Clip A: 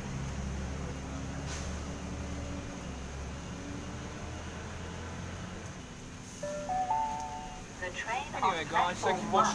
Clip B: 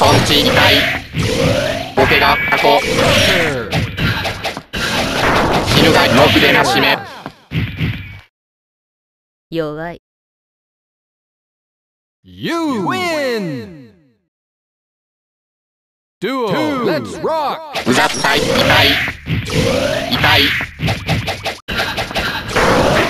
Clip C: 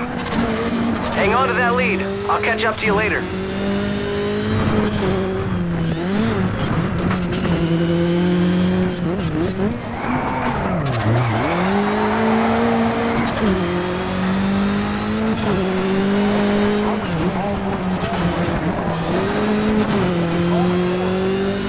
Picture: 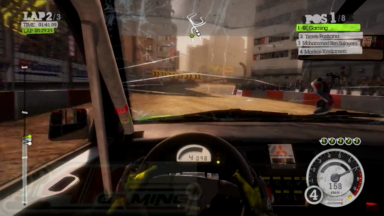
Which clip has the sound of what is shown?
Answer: C